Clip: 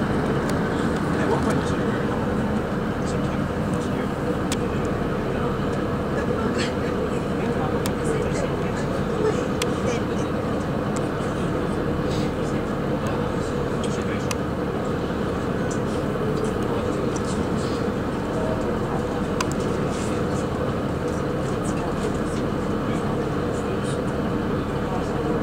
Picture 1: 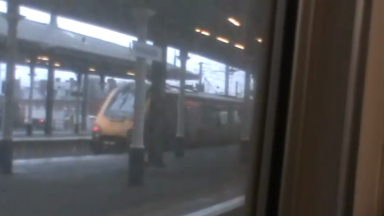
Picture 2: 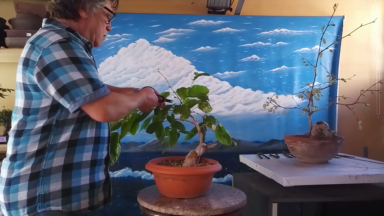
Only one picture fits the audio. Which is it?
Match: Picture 1